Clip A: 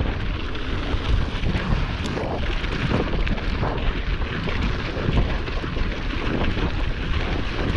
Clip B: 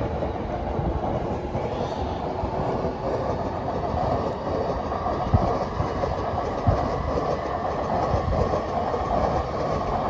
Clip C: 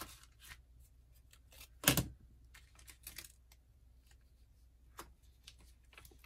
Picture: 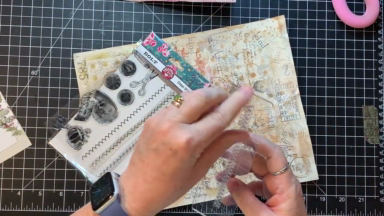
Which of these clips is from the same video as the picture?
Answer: C